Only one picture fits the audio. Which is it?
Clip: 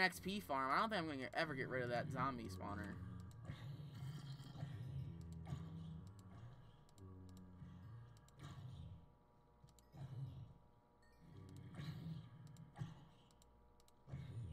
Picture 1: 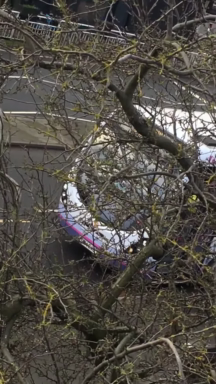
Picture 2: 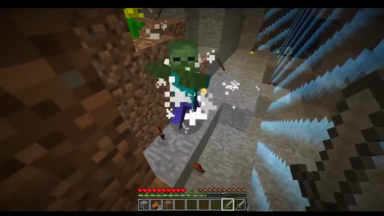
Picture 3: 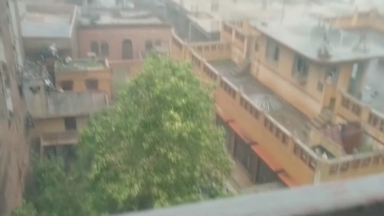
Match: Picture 2